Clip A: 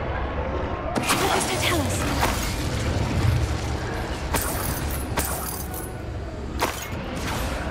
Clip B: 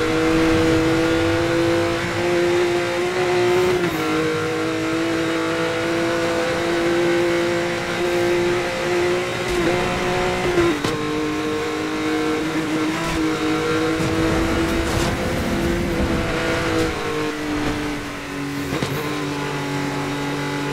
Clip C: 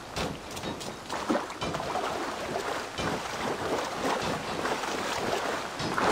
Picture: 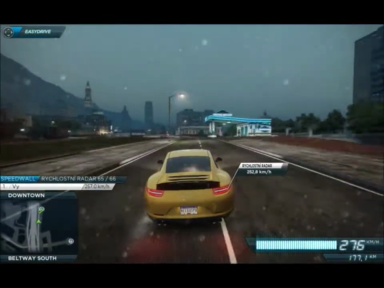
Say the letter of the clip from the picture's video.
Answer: B